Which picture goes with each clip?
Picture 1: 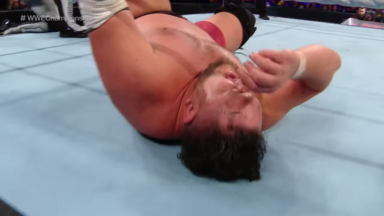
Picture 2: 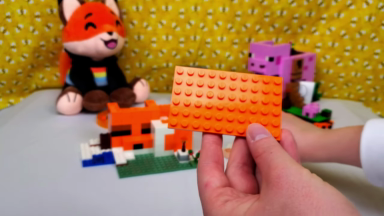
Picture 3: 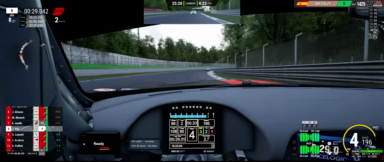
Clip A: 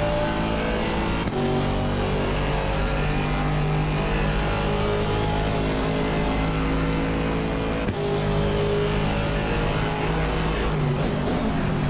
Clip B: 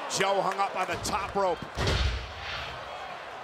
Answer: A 3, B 1